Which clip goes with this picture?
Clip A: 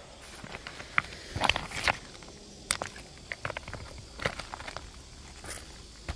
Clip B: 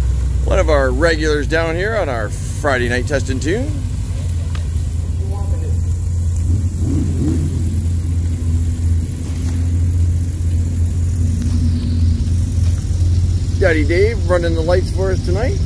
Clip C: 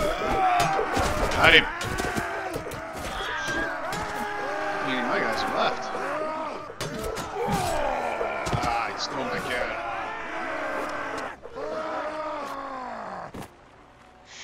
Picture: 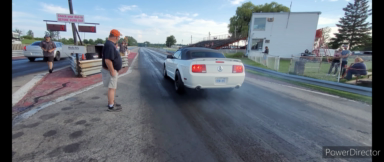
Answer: B